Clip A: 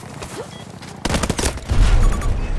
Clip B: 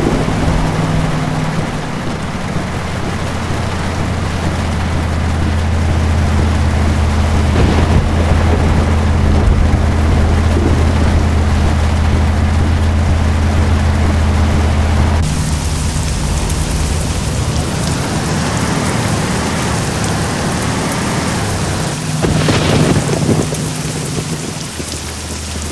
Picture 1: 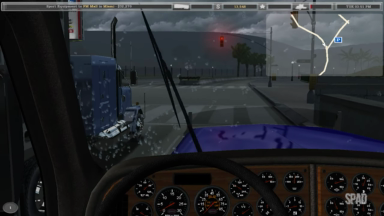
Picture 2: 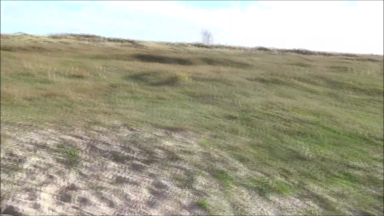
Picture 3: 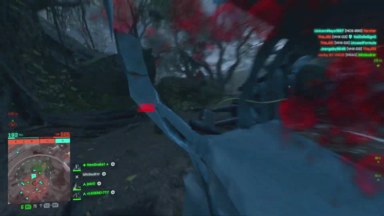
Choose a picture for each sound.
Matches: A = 3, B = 1